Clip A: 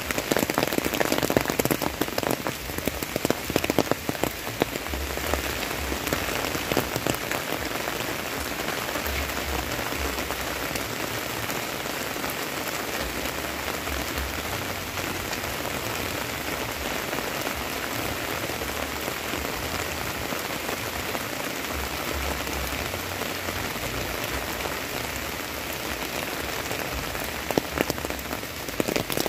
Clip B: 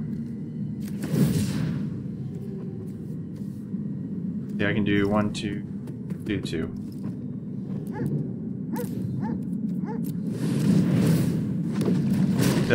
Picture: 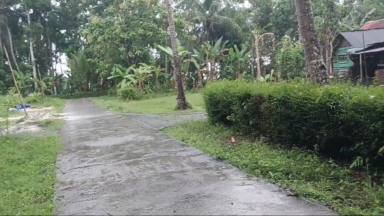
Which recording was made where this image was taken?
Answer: A